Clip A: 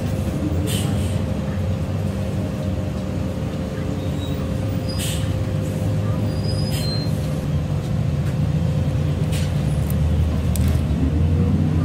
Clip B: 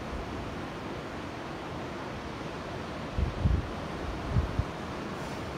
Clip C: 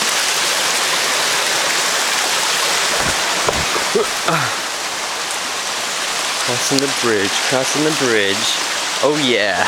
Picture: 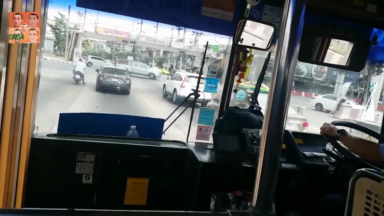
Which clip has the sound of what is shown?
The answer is A